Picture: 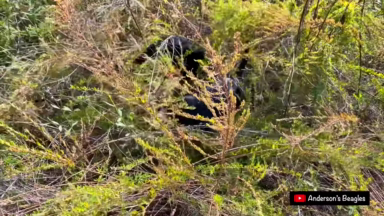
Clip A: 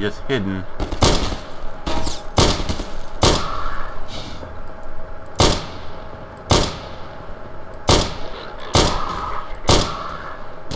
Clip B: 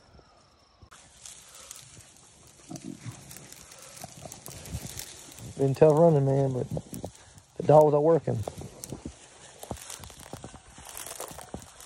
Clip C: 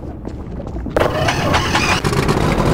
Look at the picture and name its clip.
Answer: B